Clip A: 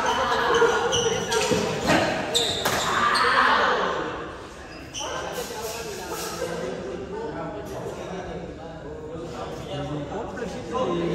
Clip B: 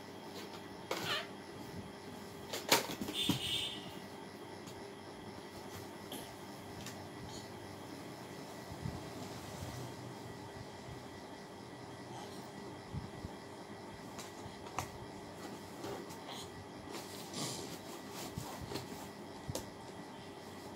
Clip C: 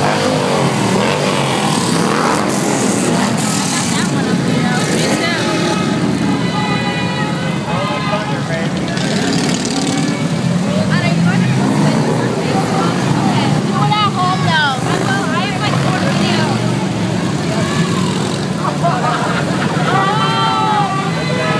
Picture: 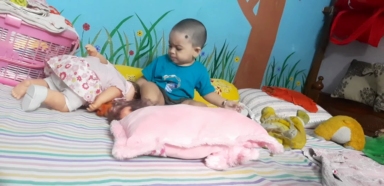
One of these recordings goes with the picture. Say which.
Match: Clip B